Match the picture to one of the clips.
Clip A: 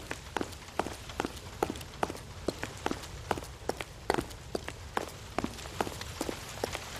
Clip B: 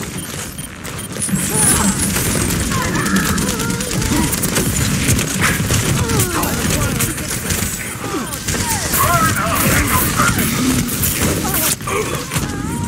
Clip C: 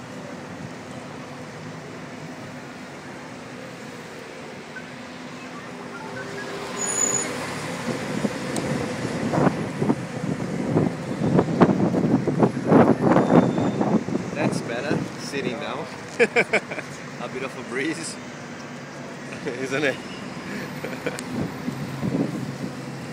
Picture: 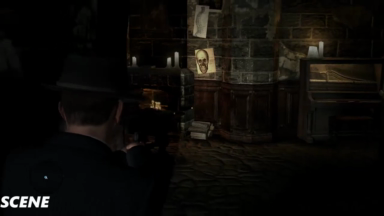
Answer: A